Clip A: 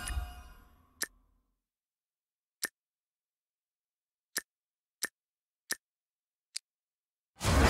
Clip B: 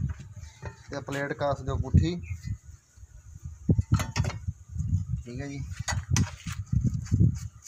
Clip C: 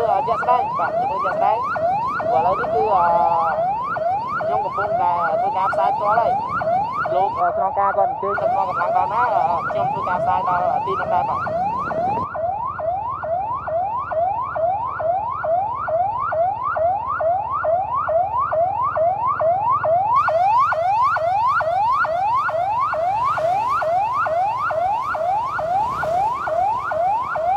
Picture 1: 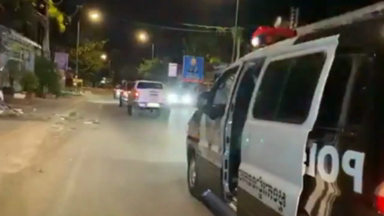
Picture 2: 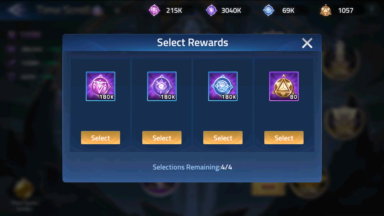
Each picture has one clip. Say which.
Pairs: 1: C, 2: A